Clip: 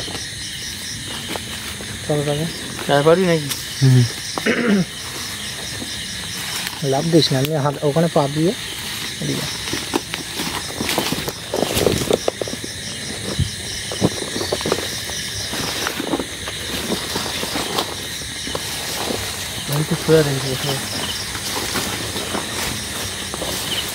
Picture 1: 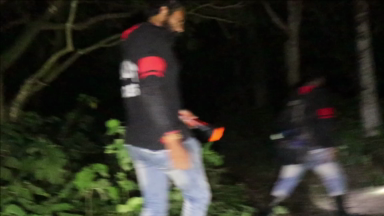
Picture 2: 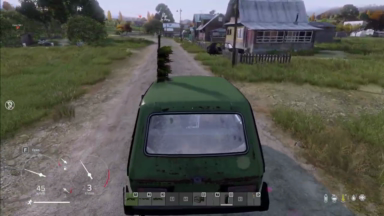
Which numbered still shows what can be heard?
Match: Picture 1